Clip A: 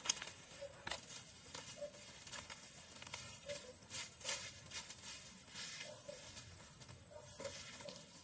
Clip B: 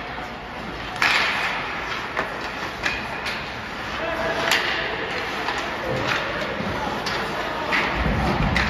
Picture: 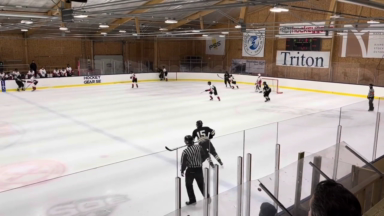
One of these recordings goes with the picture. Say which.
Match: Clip B